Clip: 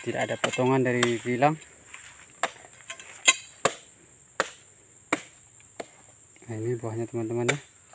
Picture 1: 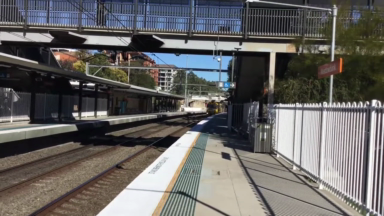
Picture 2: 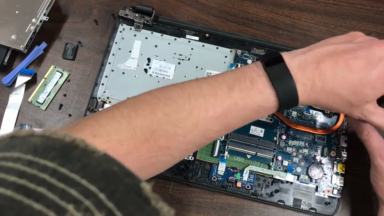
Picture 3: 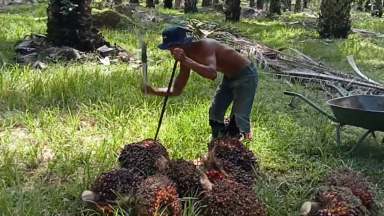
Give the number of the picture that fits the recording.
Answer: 3